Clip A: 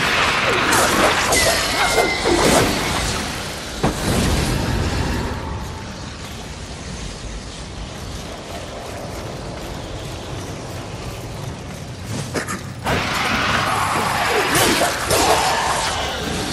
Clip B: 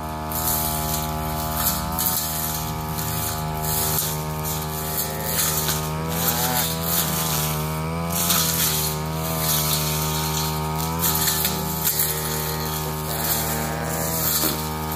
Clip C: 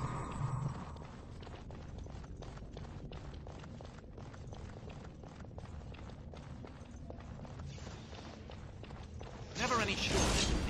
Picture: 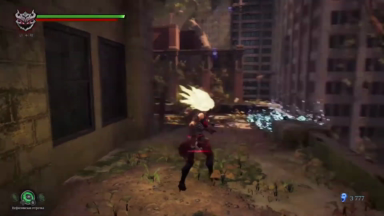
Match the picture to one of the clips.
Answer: A